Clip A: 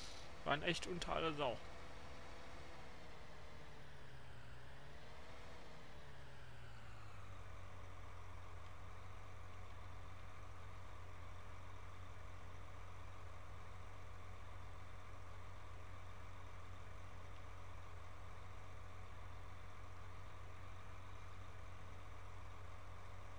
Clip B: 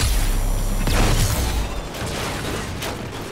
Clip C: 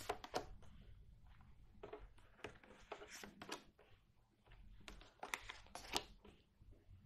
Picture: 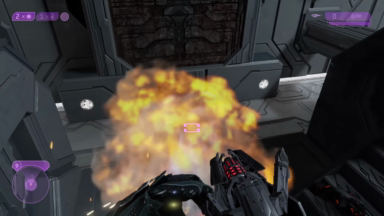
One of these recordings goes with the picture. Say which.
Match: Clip B